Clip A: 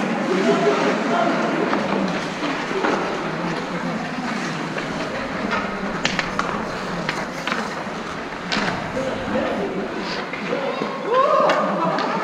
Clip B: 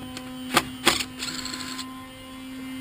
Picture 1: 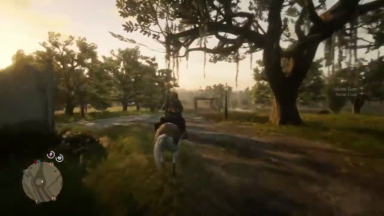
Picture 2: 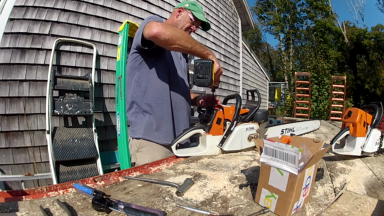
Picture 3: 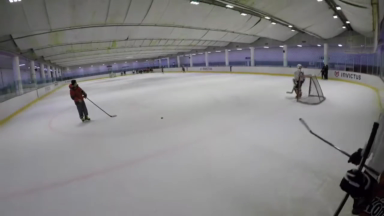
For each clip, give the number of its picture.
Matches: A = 3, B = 2